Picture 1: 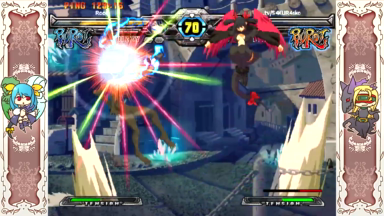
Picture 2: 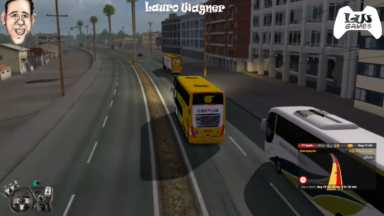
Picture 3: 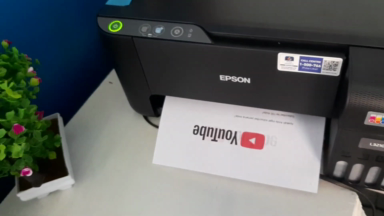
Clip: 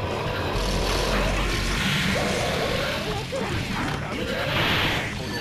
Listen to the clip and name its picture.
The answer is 1